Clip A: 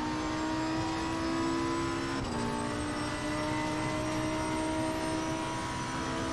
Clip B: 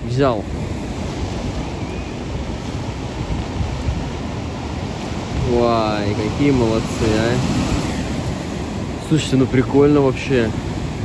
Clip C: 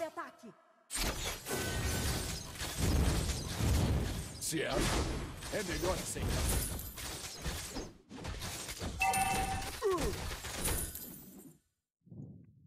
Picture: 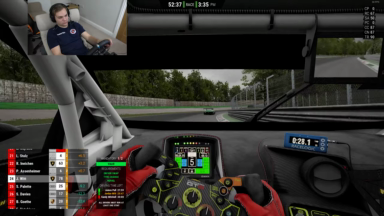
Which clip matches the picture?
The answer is A